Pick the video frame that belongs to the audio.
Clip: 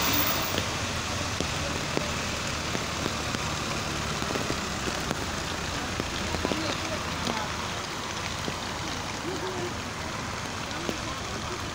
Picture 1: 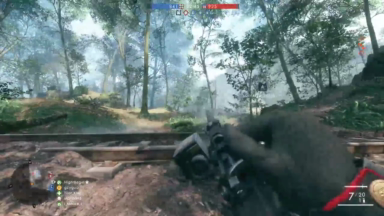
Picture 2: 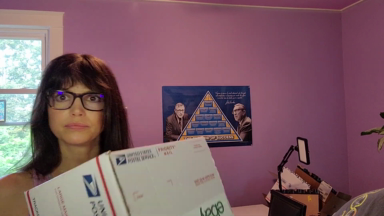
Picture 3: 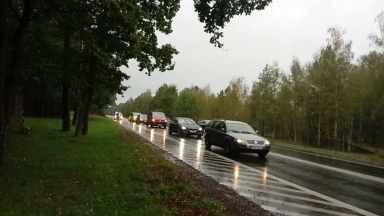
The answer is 3